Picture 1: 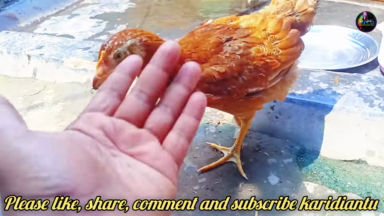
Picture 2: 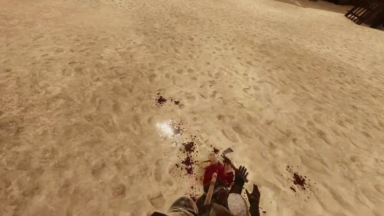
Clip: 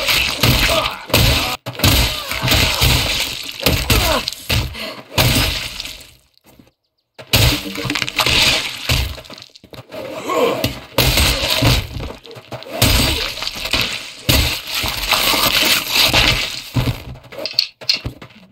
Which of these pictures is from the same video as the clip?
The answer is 2